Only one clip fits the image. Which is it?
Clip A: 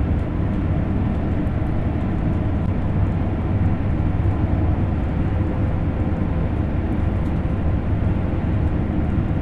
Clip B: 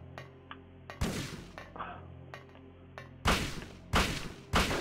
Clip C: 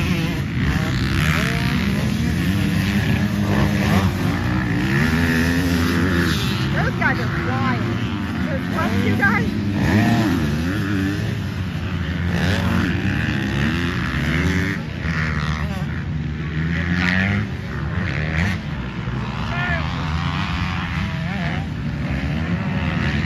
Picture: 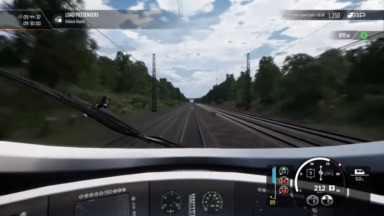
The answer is A